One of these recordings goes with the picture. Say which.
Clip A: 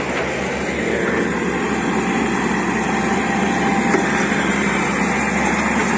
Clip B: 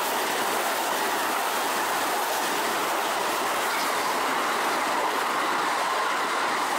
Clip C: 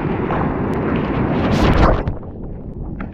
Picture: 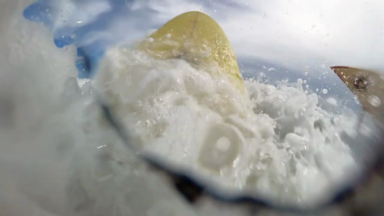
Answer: C